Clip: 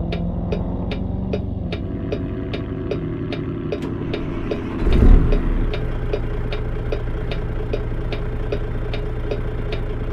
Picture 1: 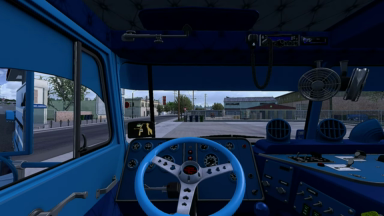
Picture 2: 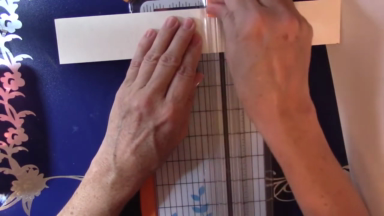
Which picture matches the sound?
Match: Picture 1